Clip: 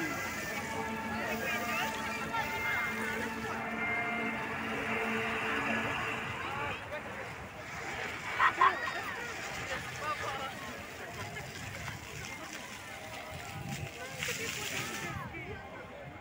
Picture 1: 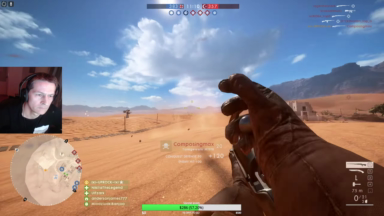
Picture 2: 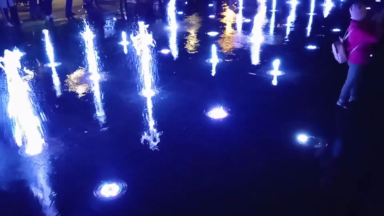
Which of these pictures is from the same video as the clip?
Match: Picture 2